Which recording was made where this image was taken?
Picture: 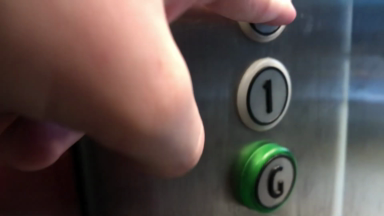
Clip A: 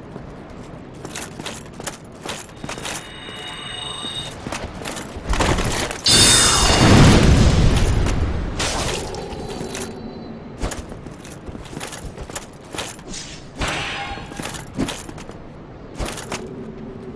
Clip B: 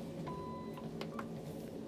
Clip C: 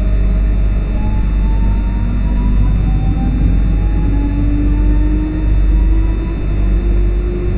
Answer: B